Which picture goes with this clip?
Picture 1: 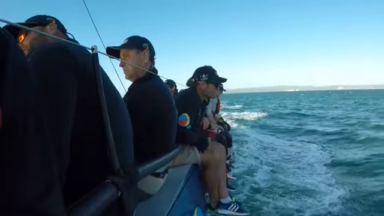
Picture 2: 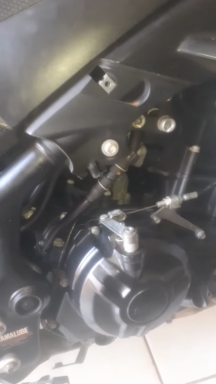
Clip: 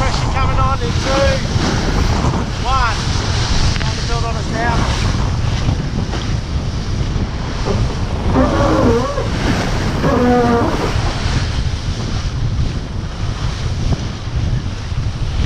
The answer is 1